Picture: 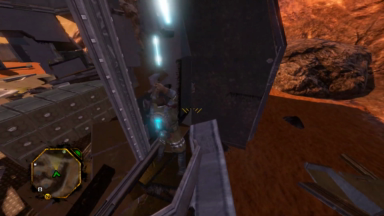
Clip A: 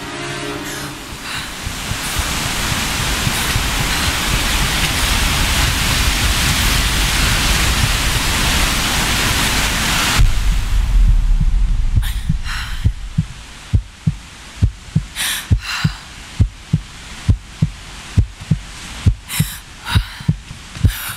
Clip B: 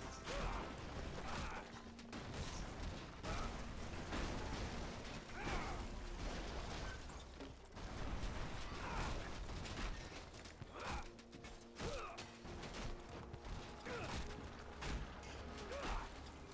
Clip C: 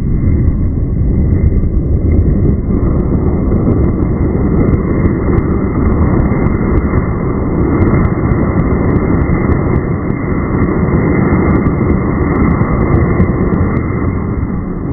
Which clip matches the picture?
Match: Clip B